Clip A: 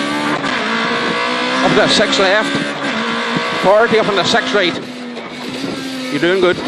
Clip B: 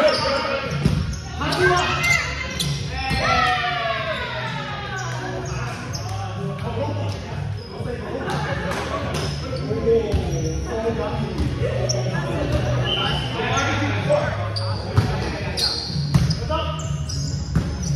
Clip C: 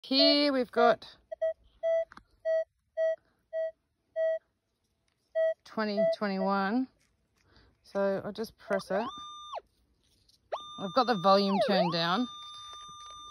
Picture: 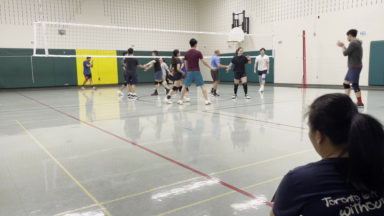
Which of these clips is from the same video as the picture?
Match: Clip B